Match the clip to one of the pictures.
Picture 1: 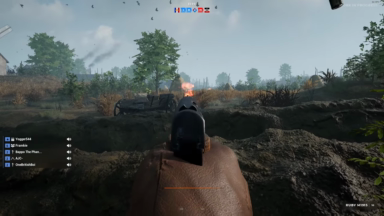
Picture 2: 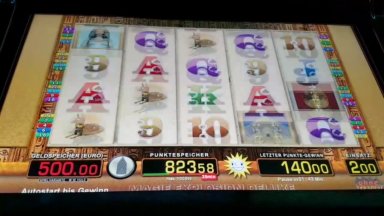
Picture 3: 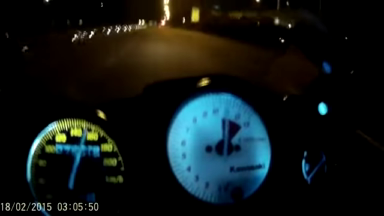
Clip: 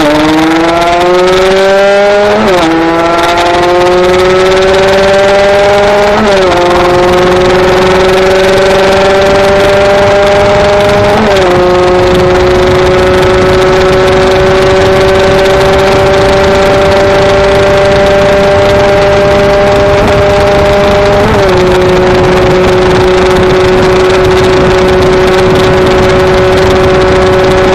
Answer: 3